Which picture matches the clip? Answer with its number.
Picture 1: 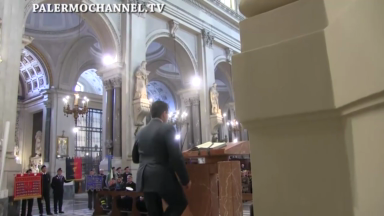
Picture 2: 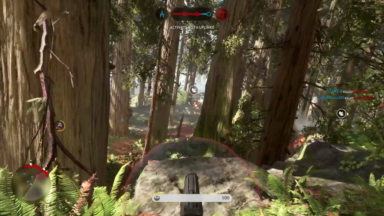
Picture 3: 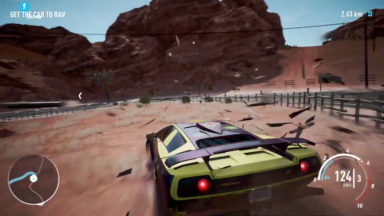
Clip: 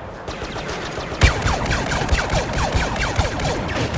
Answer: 2